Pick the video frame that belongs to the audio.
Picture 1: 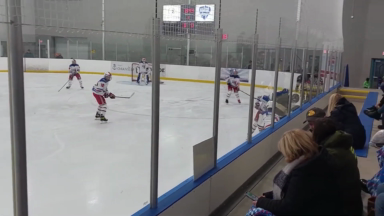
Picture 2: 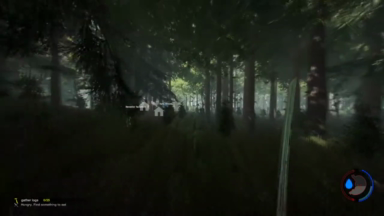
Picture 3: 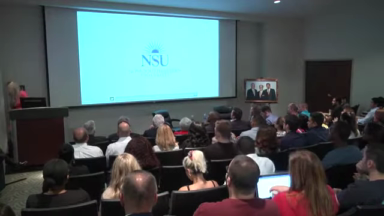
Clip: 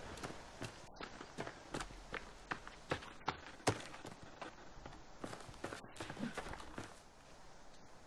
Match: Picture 2